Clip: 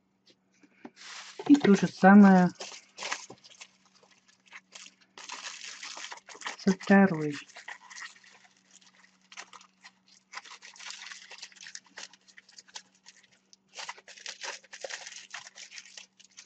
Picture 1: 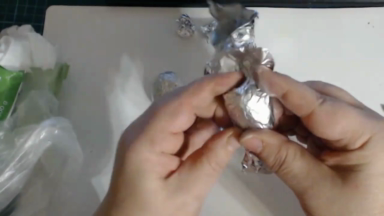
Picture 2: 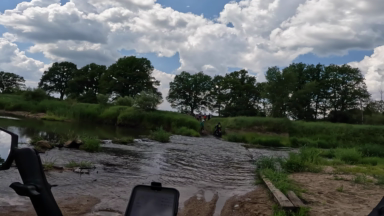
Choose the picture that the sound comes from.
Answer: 1